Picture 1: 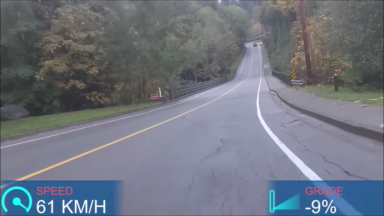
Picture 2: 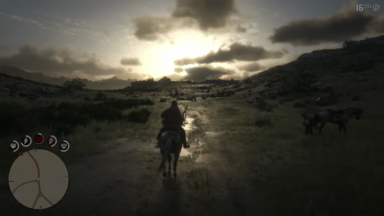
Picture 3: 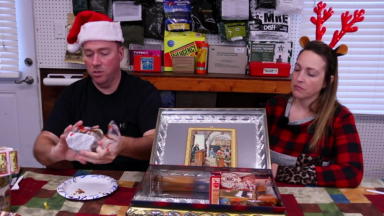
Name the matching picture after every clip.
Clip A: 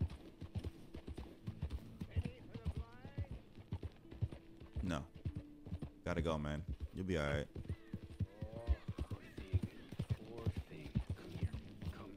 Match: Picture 2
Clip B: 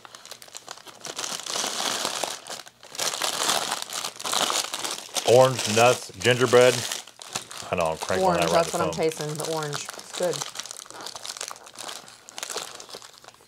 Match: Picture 3